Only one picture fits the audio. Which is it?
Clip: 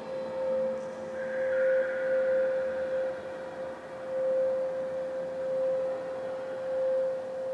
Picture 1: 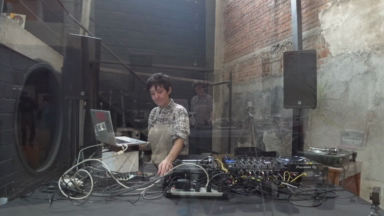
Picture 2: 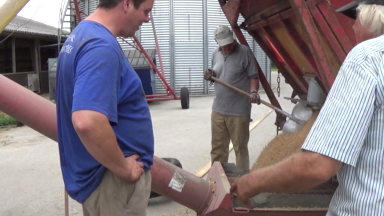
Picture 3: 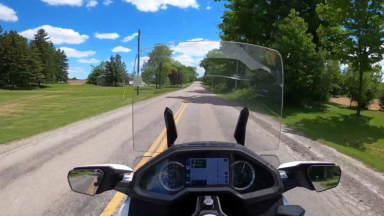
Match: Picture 1